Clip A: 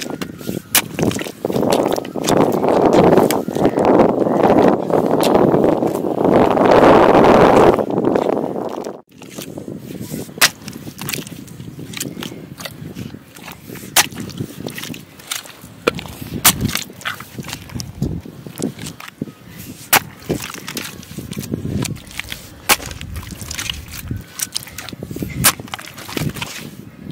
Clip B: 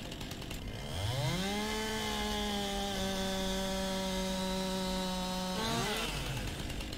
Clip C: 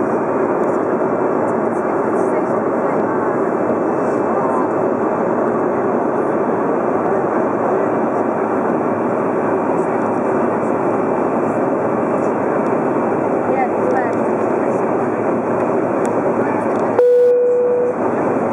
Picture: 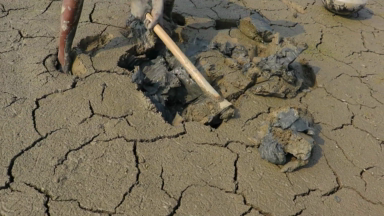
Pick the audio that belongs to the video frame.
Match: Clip A